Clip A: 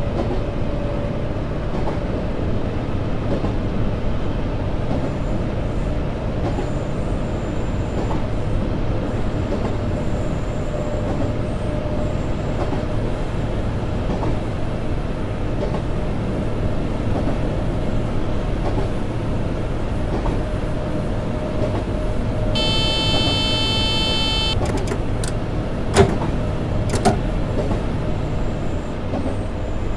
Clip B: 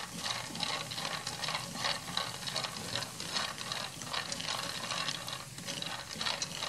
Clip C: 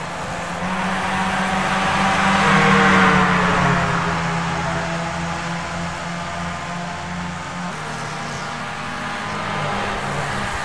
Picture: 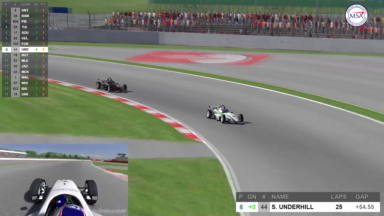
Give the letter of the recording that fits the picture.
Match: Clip C